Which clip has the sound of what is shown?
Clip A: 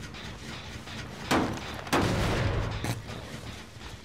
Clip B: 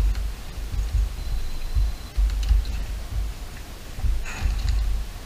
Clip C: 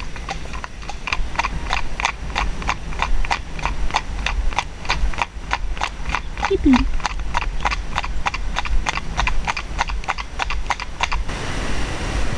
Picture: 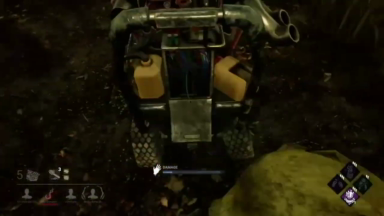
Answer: A